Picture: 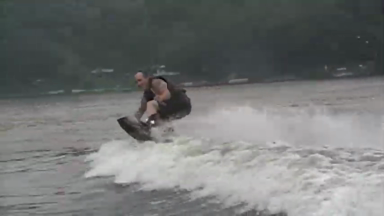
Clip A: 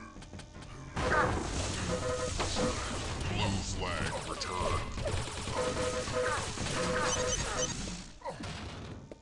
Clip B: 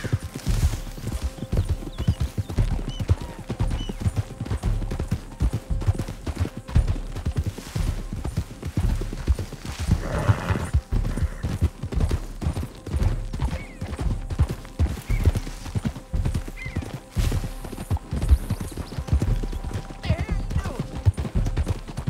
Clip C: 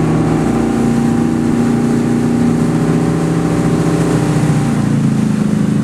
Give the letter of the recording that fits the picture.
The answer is C